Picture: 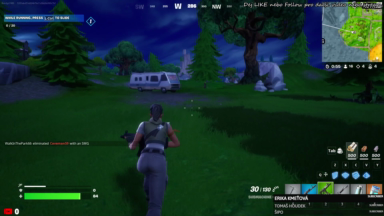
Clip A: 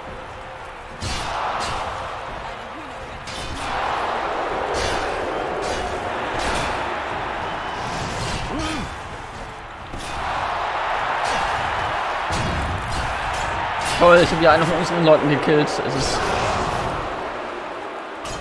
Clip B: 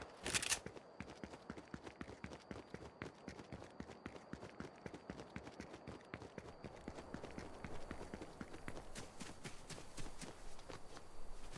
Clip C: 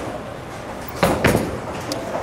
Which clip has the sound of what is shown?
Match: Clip B